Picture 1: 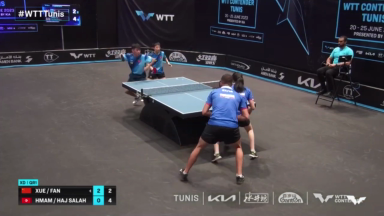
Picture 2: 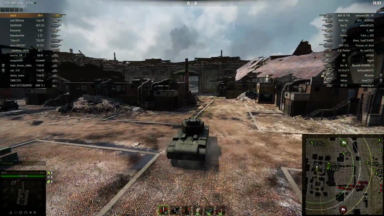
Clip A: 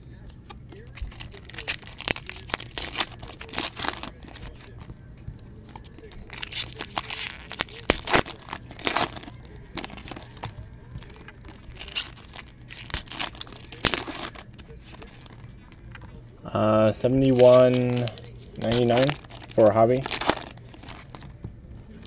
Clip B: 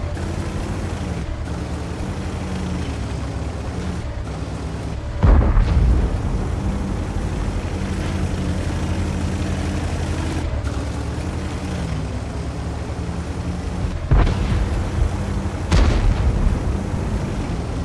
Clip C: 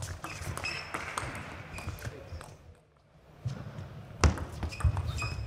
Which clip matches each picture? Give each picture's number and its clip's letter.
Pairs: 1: C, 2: B